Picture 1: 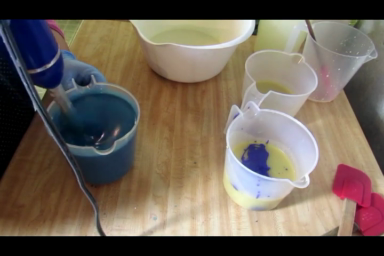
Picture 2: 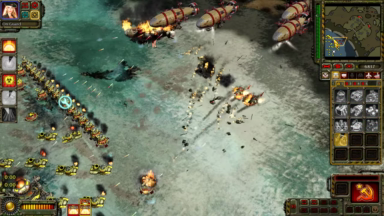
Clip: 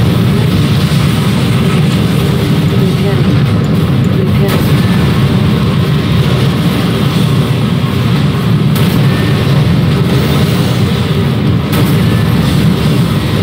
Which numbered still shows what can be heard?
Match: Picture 2